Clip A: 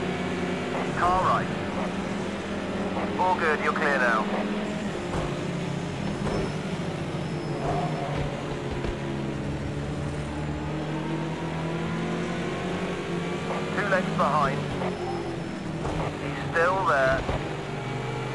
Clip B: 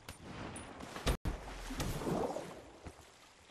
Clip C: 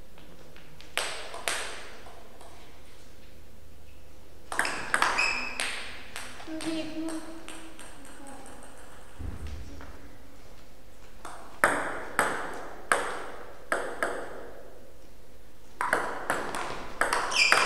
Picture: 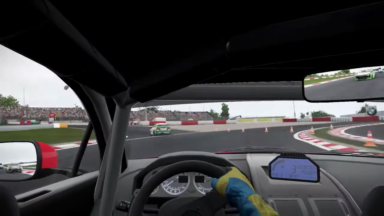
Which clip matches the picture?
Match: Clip A